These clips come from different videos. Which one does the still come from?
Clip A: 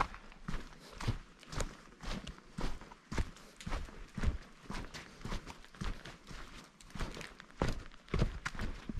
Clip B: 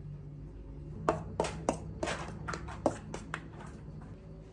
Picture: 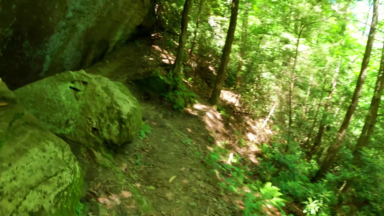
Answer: A